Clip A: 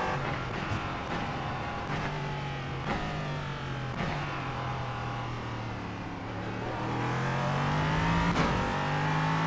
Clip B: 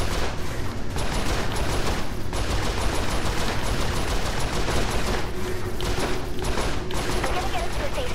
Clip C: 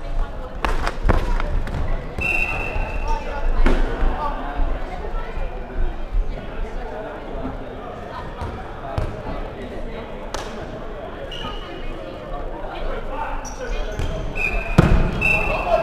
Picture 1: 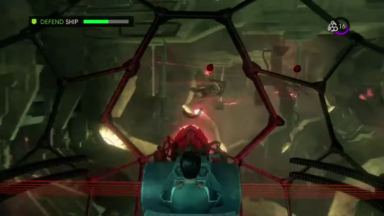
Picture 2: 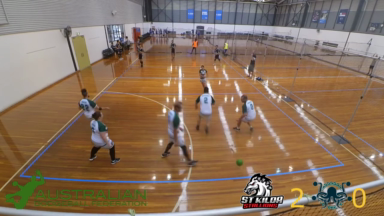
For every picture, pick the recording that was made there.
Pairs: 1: B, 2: C